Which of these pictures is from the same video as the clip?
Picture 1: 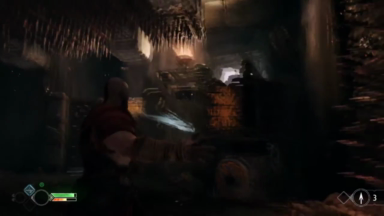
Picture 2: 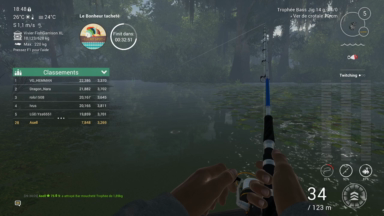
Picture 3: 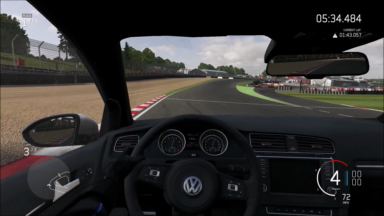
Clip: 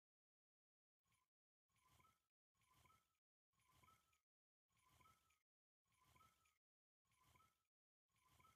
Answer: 2